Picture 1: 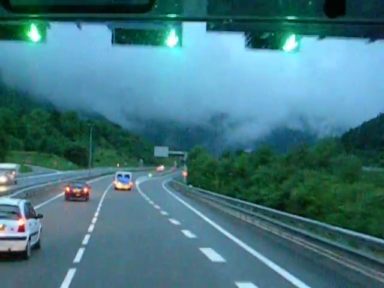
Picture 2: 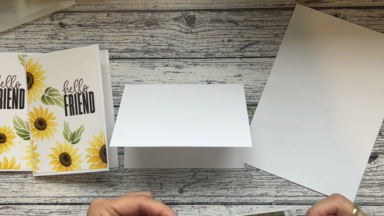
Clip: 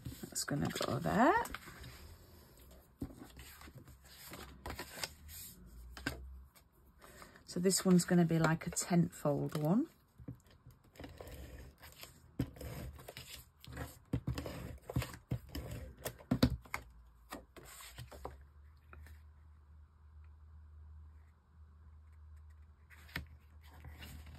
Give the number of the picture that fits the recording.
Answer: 2